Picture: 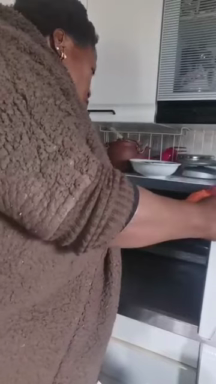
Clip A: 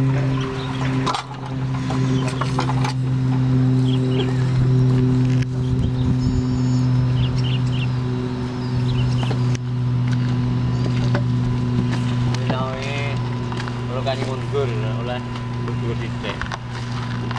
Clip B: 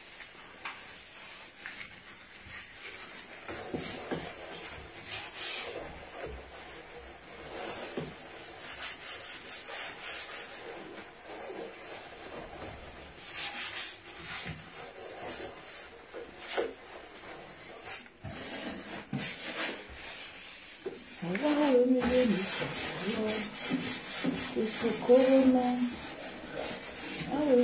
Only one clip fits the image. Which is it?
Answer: B